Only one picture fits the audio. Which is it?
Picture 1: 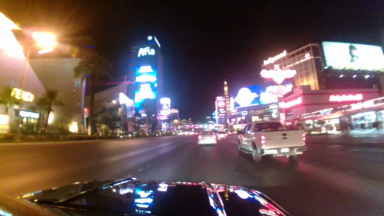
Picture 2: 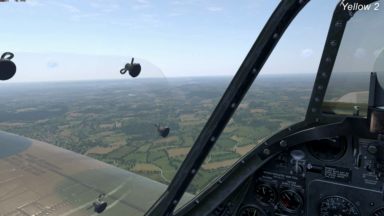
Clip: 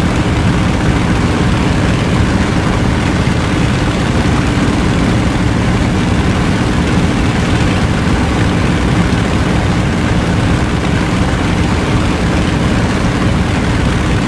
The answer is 2